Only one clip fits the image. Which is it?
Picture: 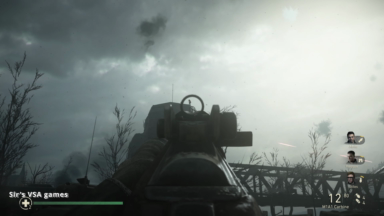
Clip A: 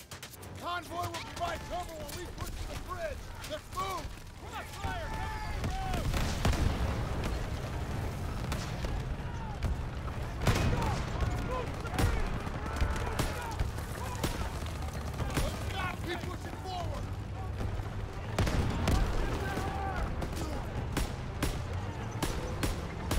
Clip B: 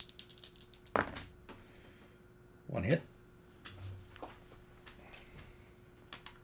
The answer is A